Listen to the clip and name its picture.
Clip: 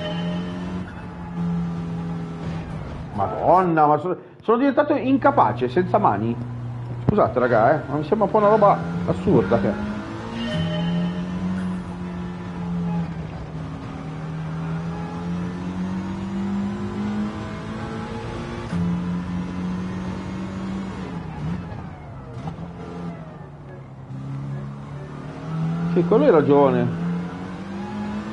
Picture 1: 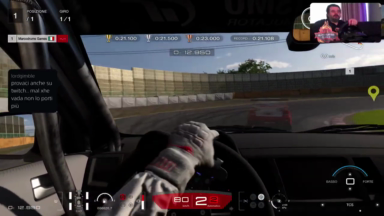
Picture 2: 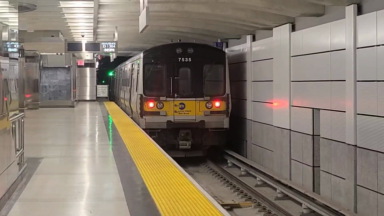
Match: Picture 1